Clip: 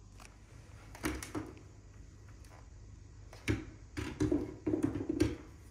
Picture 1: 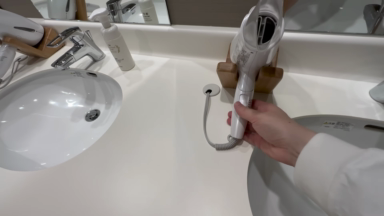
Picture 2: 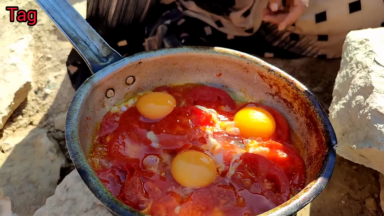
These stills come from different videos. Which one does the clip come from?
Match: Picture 1